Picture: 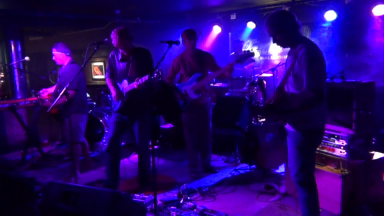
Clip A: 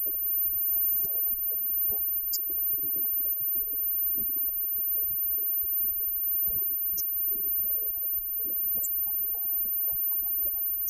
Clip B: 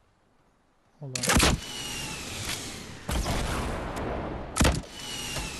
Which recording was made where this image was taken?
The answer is A